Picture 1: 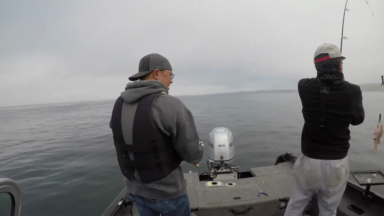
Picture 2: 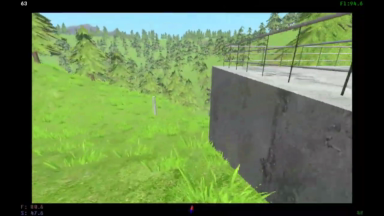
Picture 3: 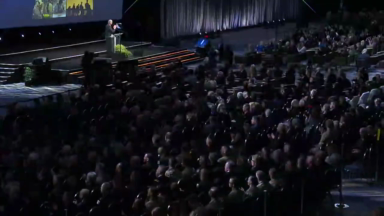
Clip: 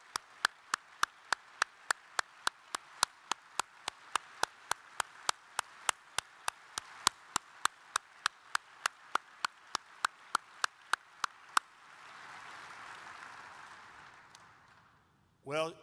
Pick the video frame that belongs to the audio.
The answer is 3